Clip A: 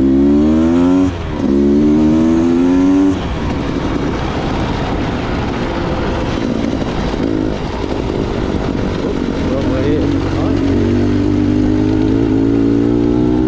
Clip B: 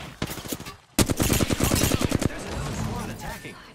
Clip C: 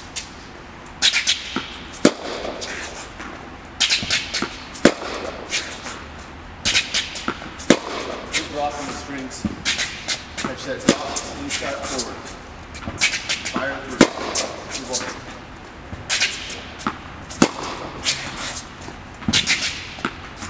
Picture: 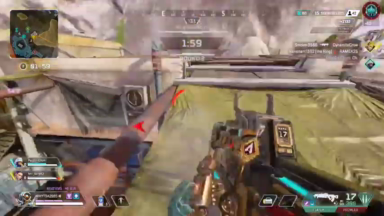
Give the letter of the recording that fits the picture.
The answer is B